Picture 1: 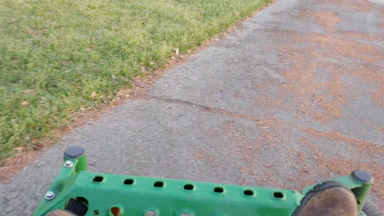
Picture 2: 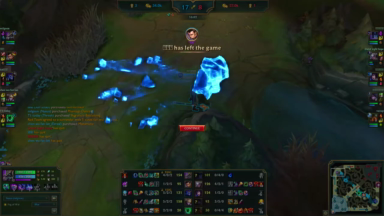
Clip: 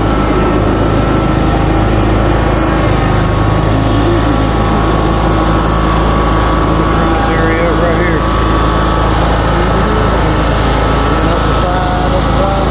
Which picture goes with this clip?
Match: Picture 1